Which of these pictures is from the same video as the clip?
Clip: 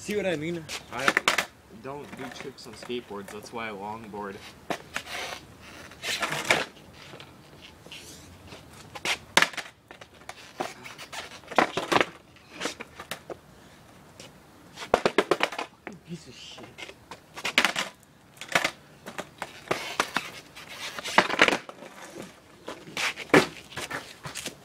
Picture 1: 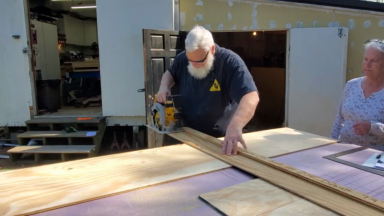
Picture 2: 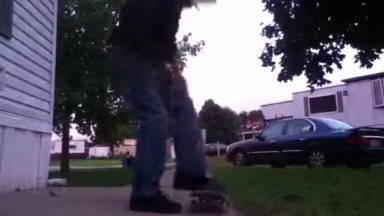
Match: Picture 2